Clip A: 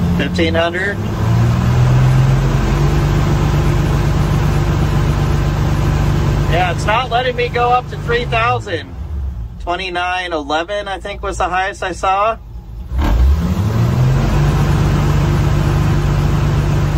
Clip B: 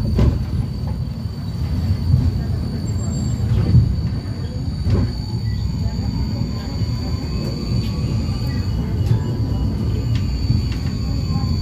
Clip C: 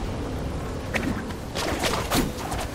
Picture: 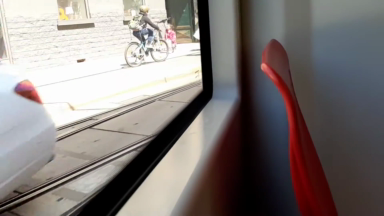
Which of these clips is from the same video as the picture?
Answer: B